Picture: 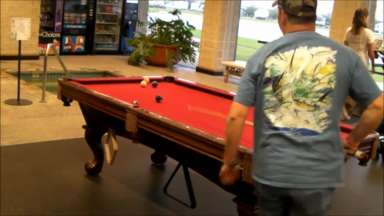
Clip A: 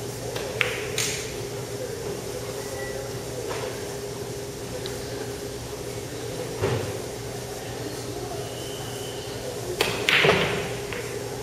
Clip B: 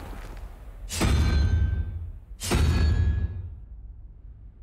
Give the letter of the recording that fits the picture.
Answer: A